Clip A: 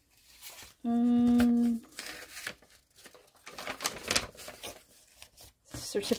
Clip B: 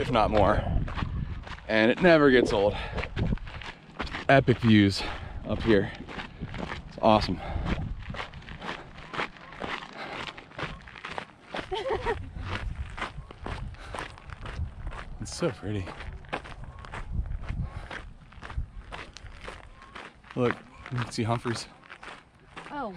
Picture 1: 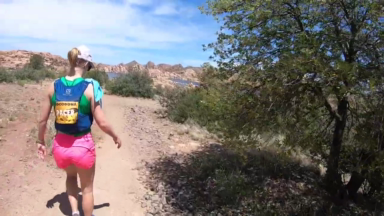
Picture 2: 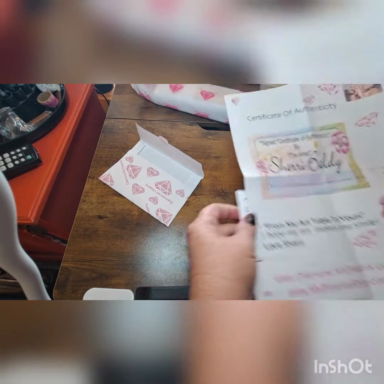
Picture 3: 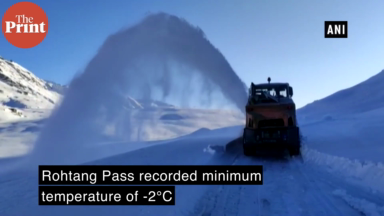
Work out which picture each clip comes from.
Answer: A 2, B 1